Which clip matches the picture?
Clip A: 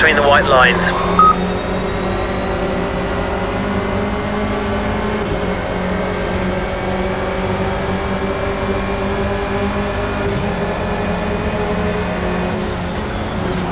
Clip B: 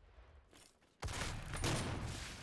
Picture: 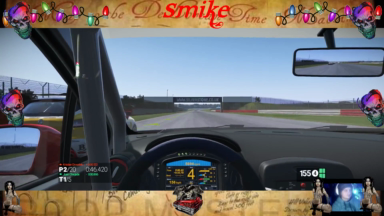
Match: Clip A